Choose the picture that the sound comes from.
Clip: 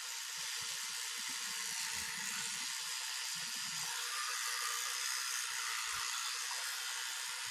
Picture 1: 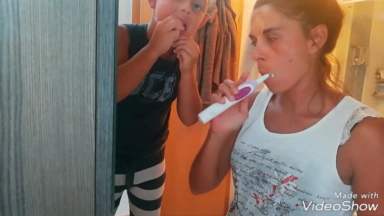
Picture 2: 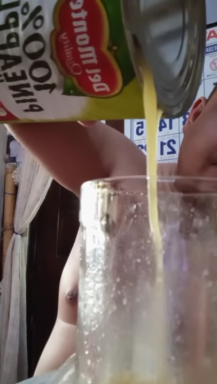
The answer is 1